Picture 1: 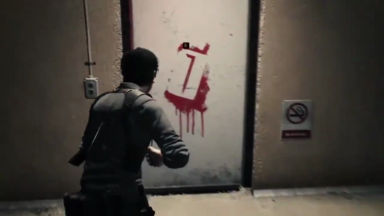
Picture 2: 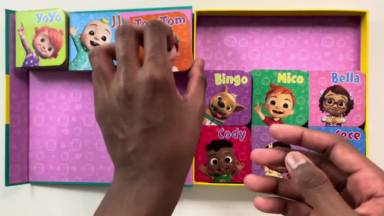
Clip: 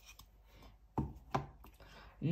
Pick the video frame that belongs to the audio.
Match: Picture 2